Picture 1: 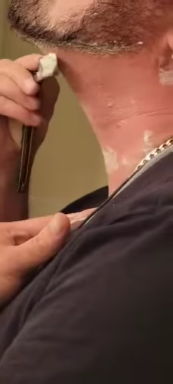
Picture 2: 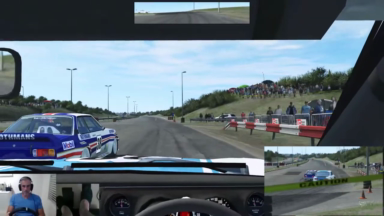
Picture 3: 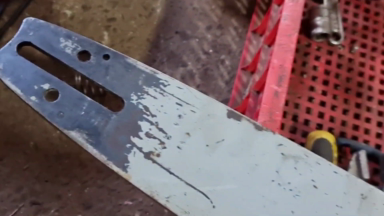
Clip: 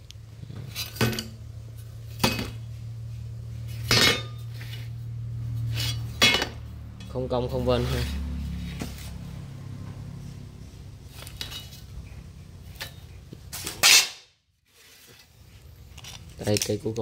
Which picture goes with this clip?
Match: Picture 3